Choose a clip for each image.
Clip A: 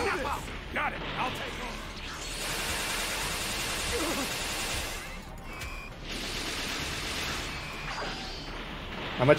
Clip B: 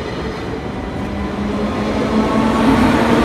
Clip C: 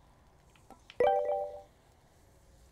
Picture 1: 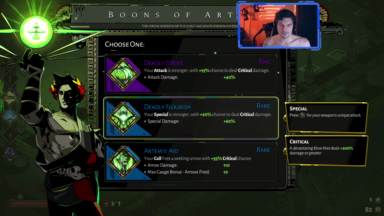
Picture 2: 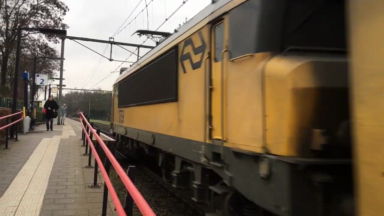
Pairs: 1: C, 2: B